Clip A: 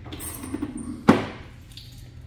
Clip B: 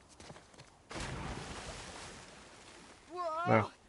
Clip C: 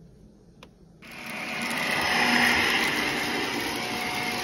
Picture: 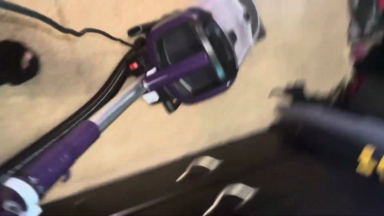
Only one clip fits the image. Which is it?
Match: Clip C